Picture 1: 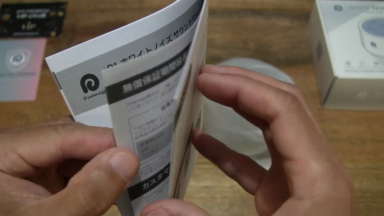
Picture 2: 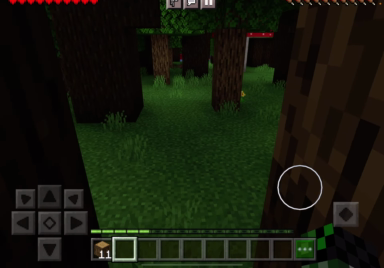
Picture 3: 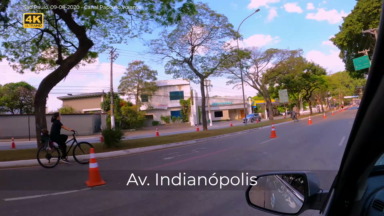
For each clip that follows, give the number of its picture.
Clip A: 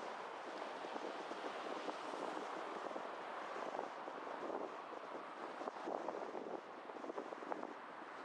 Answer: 3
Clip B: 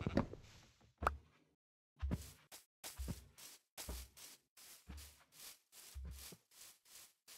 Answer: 2